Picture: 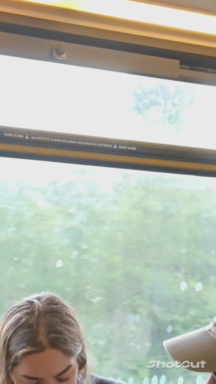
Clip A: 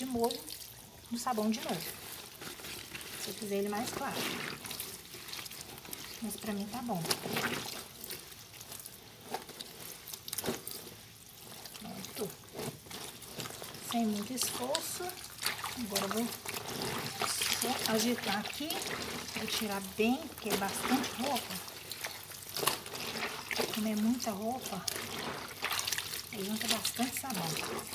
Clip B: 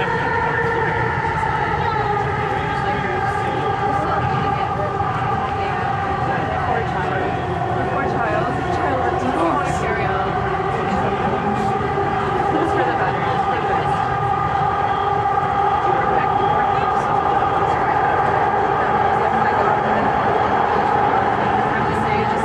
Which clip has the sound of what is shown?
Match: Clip B